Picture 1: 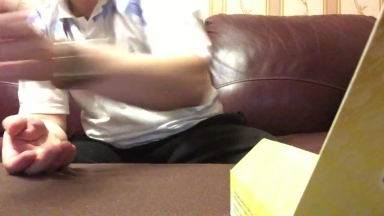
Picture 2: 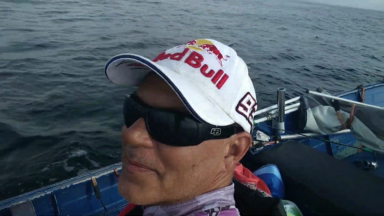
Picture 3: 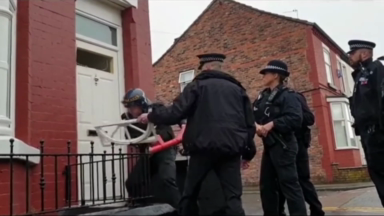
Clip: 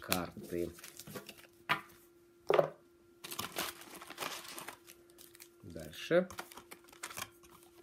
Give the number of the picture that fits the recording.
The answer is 1